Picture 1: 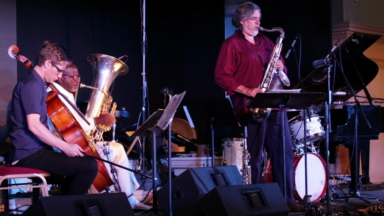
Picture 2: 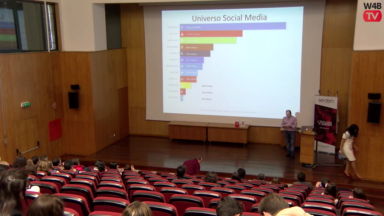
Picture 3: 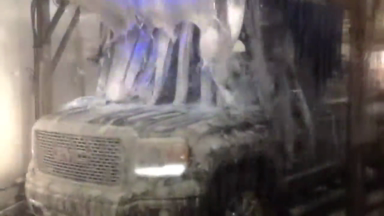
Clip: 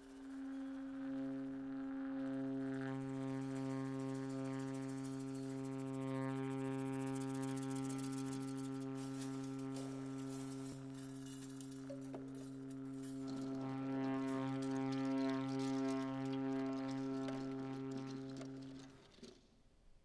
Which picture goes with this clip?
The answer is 1